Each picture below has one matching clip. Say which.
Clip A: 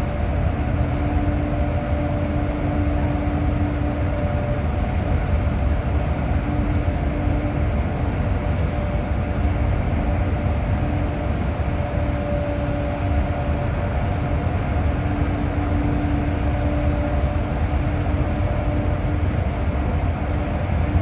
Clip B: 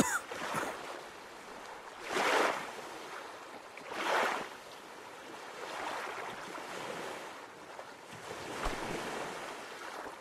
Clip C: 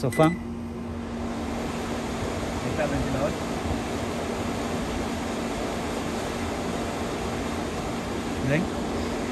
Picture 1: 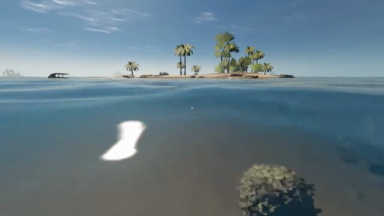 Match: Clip B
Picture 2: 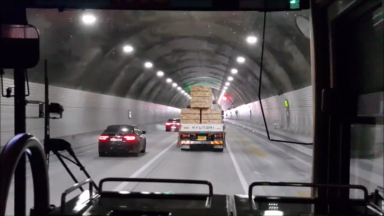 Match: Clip A